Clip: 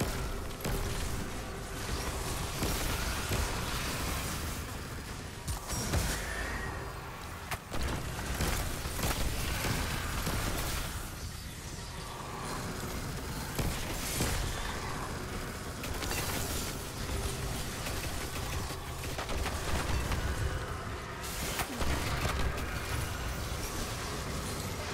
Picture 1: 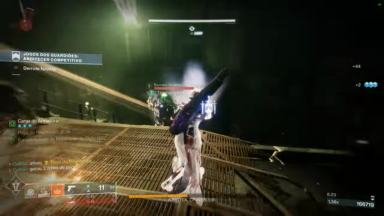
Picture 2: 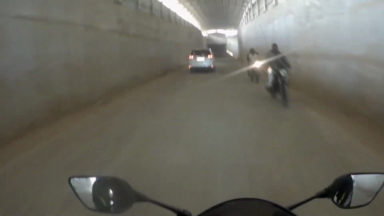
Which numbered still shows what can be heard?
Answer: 1